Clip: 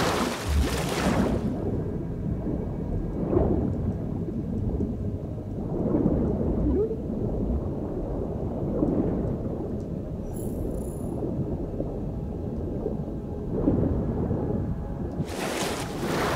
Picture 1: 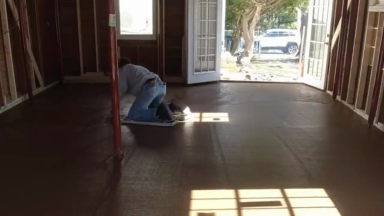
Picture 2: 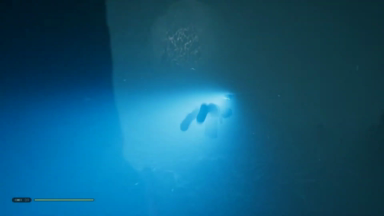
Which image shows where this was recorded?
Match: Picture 2